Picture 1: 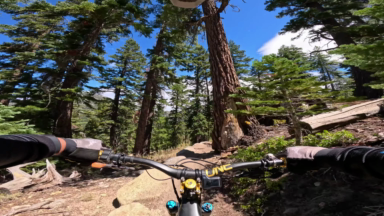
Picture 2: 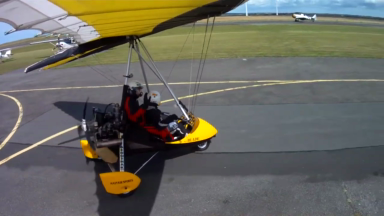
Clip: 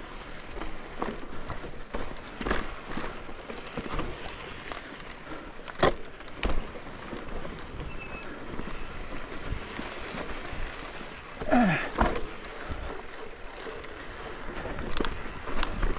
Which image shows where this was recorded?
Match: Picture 1